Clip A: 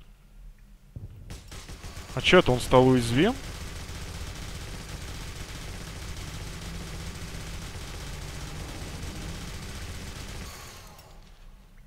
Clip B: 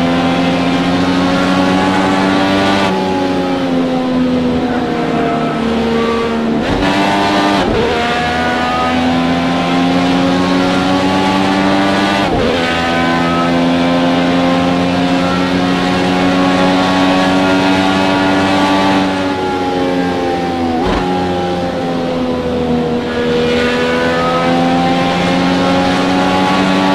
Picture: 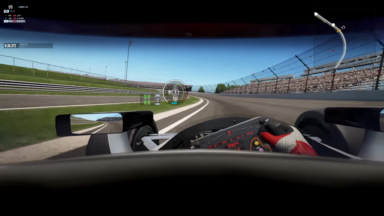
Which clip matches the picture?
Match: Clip B